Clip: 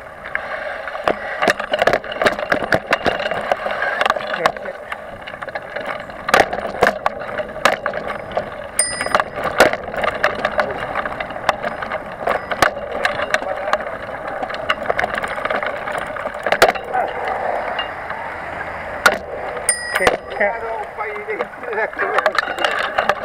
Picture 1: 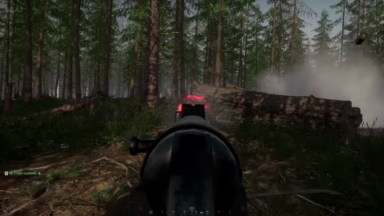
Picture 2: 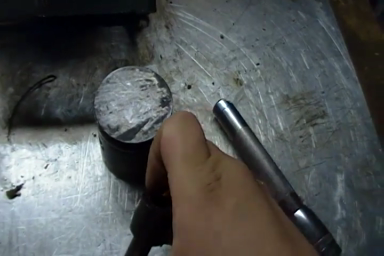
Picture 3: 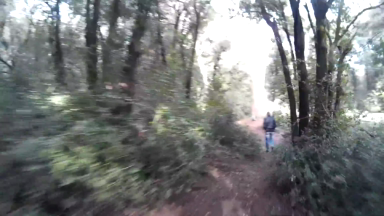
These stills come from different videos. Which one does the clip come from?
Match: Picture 3